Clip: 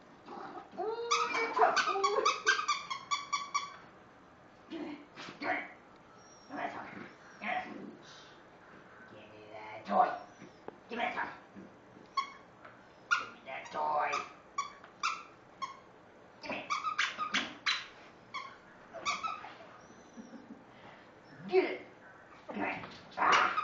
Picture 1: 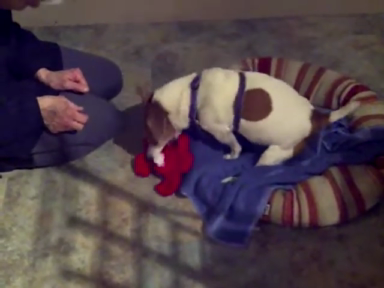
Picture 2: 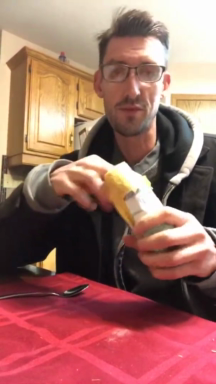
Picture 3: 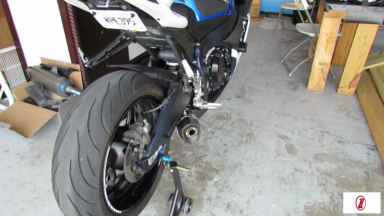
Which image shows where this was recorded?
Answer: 1